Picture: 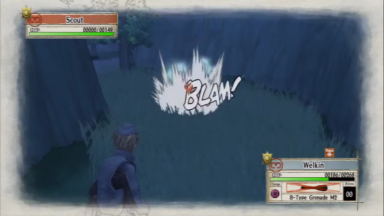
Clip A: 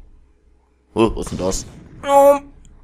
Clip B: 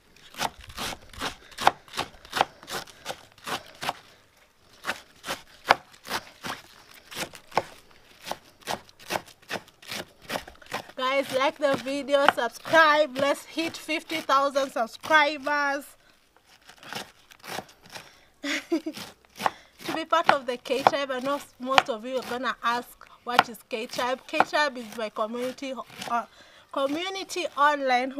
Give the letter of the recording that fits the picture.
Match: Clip A